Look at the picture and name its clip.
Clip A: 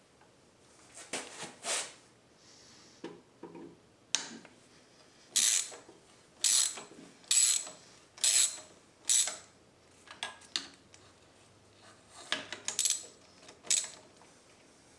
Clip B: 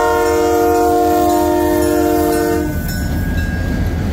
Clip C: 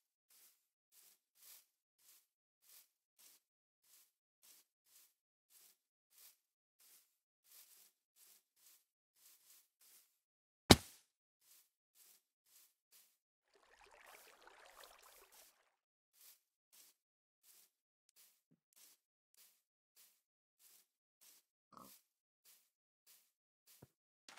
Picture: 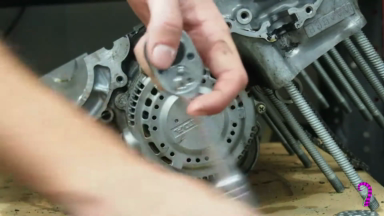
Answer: A